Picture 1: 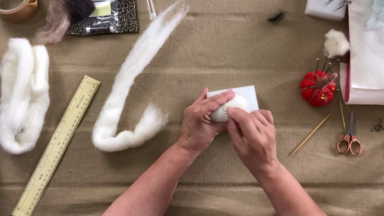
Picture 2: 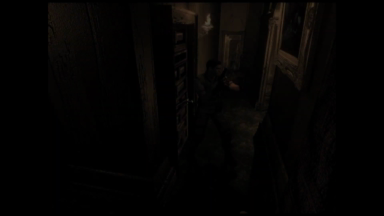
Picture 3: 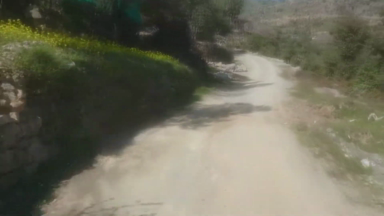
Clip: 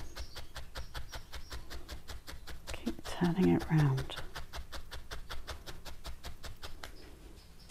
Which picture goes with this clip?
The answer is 1